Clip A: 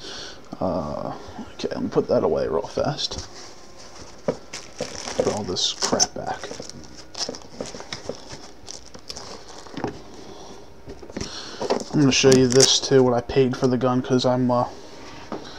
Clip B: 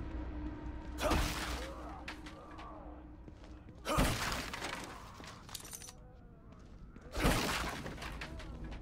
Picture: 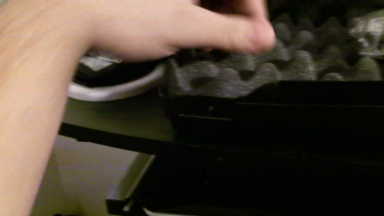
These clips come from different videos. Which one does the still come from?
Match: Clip A